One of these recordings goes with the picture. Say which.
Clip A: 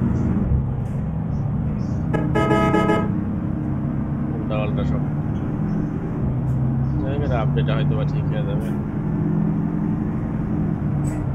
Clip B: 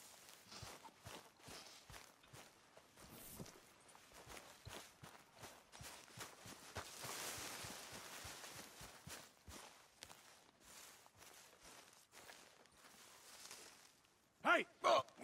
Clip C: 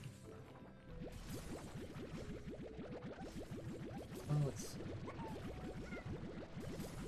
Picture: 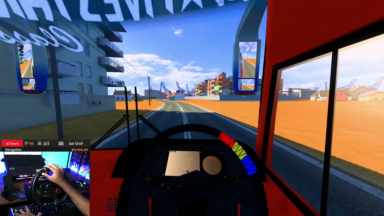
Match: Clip A